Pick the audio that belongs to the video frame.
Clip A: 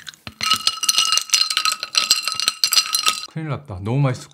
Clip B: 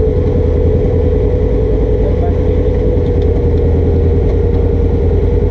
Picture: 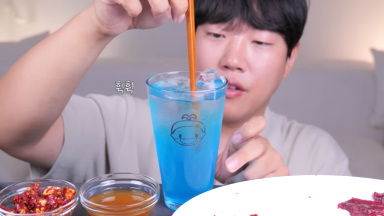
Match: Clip A